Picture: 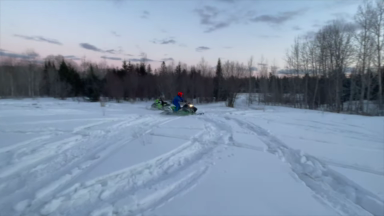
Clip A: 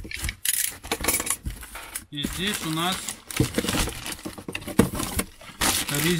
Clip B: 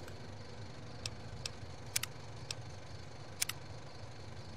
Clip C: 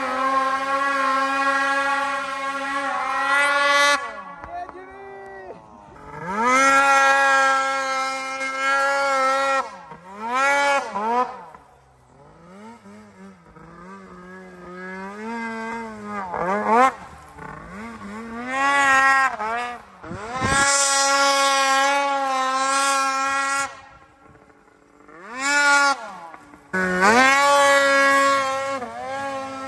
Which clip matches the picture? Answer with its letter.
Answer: C